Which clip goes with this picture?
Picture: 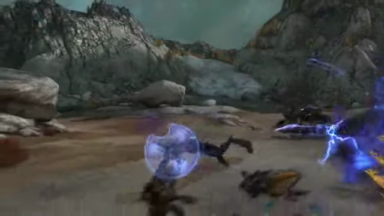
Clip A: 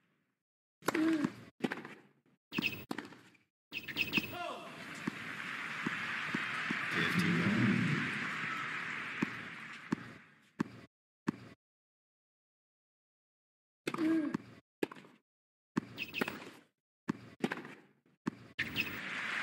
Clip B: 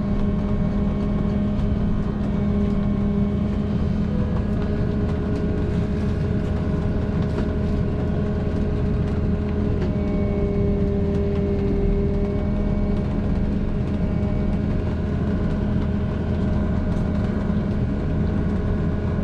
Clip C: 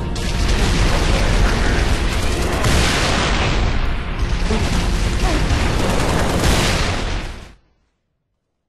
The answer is C